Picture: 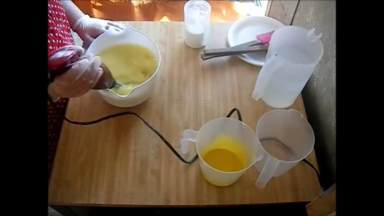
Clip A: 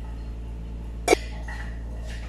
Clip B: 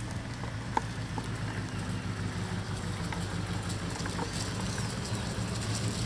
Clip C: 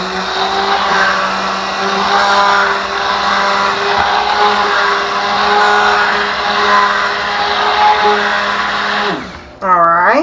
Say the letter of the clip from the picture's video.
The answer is C